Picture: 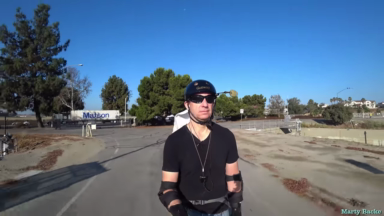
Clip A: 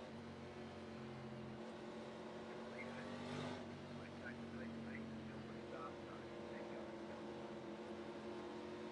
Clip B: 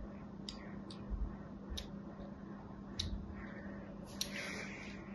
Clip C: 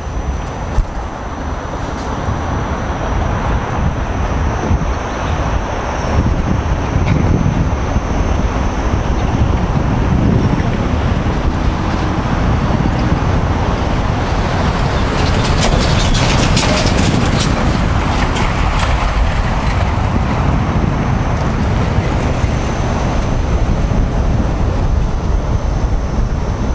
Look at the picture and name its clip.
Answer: C